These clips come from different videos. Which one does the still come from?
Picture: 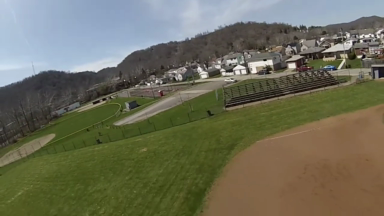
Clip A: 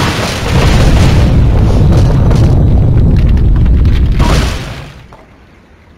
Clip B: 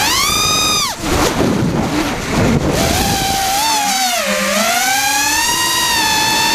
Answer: B